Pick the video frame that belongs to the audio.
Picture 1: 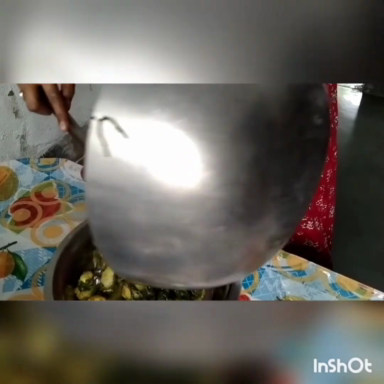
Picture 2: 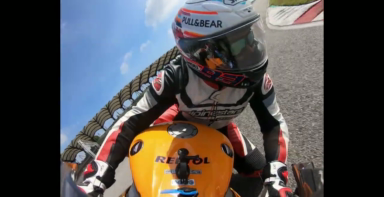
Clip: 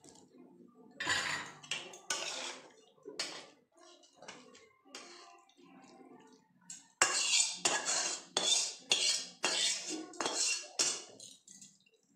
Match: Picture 1